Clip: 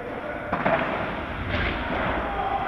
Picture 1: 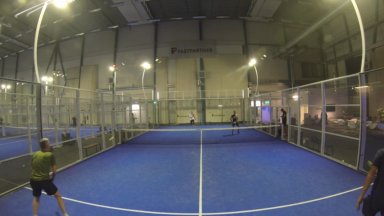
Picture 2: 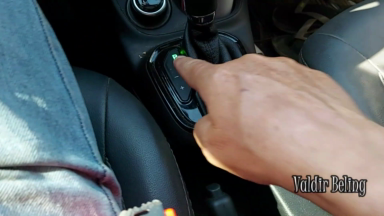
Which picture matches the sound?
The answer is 1